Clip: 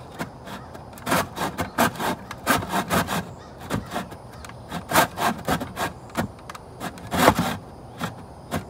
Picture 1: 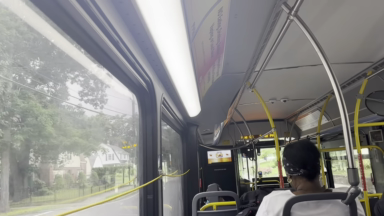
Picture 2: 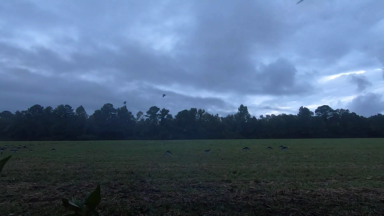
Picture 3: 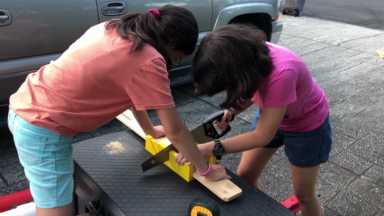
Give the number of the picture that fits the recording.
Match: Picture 3